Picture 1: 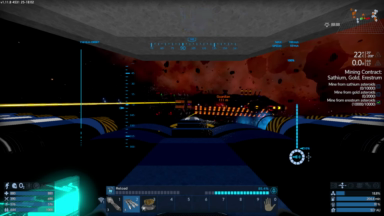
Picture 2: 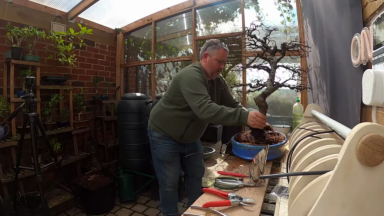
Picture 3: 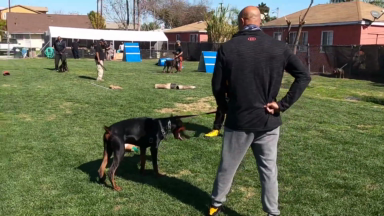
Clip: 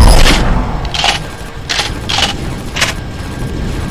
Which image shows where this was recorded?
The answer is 1